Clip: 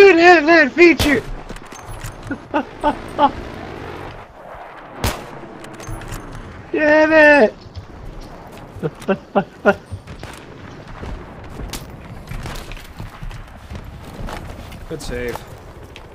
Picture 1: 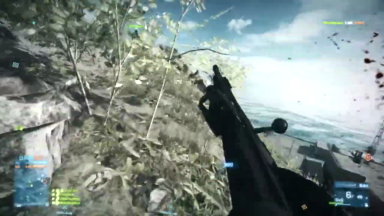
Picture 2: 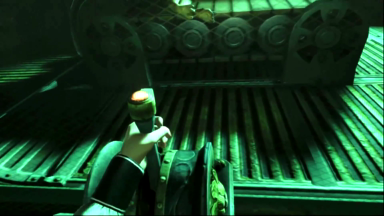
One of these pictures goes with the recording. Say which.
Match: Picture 1